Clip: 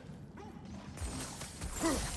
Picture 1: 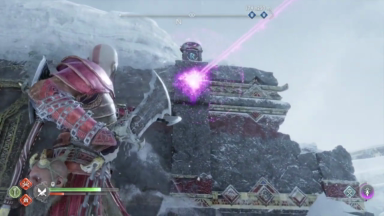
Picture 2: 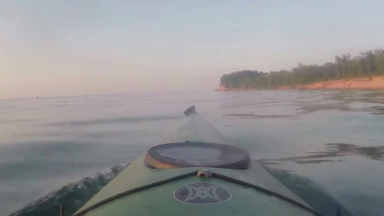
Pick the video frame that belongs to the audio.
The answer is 1